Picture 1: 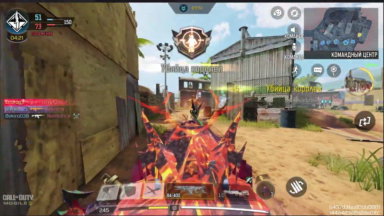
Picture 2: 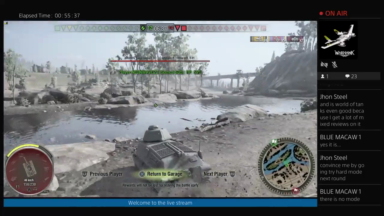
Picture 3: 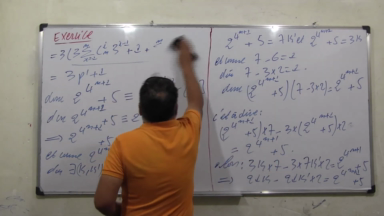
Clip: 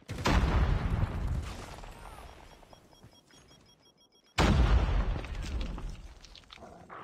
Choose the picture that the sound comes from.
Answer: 1